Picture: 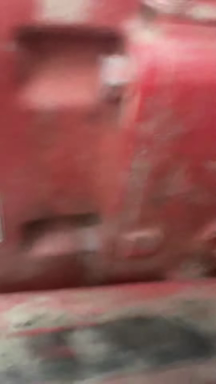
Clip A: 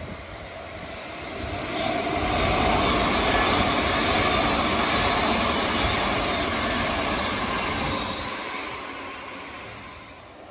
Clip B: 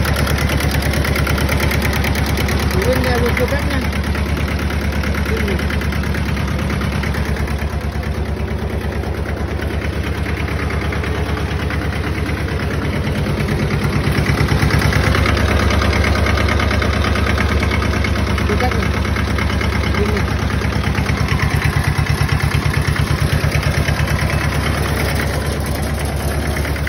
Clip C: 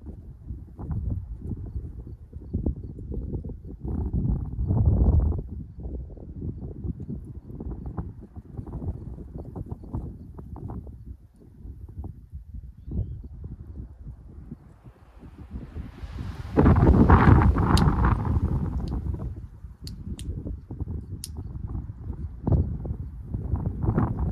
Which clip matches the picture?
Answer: B